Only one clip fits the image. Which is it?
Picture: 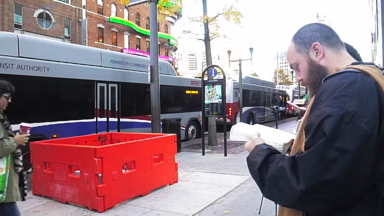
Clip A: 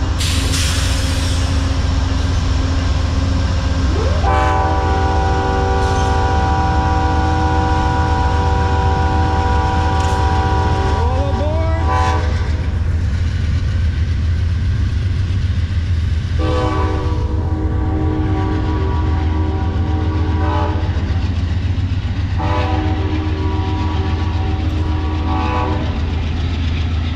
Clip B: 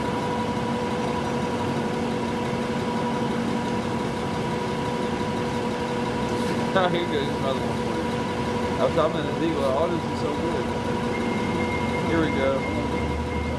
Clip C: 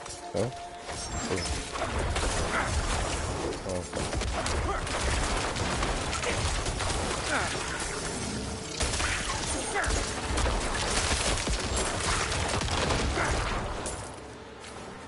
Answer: B